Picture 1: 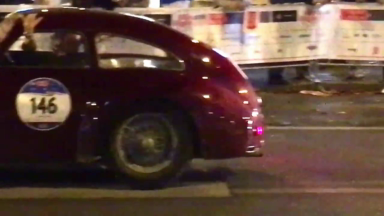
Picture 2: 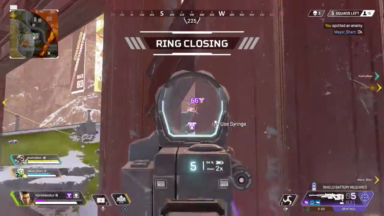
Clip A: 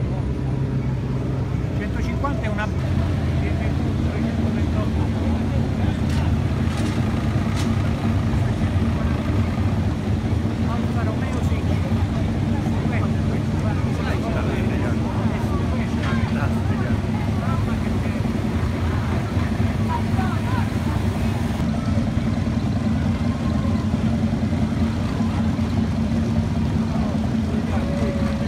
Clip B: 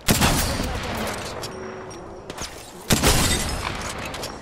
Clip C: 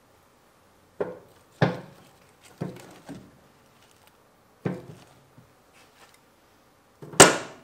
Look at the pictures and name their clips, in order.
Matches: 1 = A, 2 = B